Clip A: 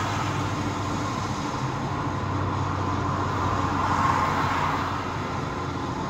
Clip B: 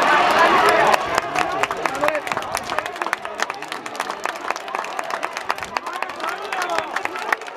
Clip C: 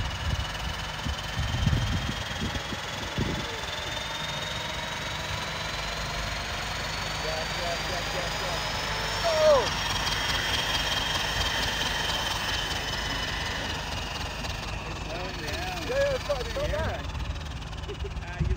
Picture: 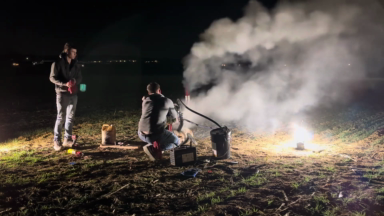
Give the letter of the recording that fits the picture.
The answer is C